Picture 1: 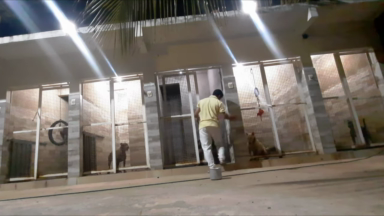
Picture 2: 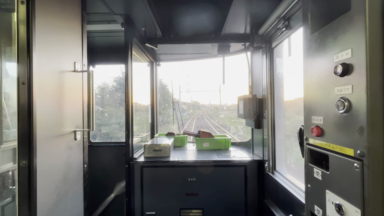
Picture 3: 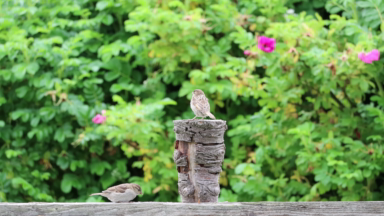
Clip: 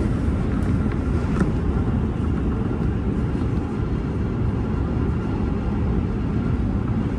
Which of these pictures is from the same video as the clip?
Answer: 2